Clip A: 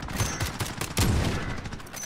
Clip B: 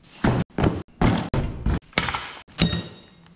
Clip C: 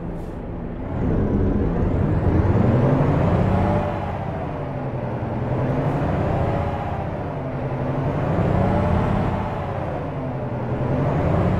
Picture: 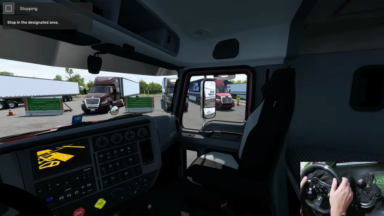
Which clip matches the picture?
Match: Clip C